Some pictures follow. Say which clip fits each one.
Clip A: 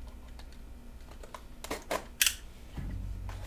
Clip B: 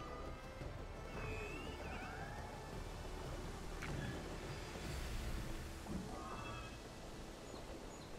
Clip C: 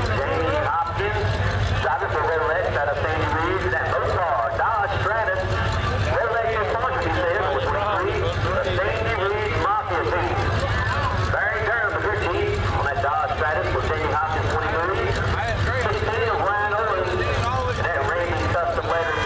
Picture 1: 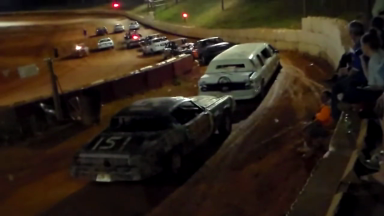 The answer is C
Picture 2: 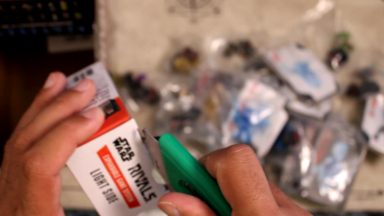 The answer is A